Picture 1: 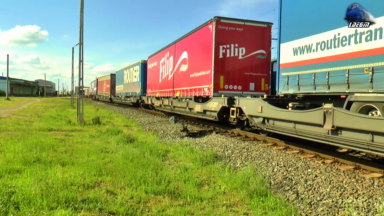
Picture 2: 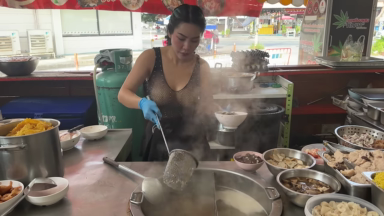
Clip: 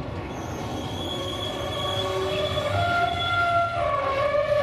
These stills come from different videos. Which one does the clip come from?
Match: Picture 1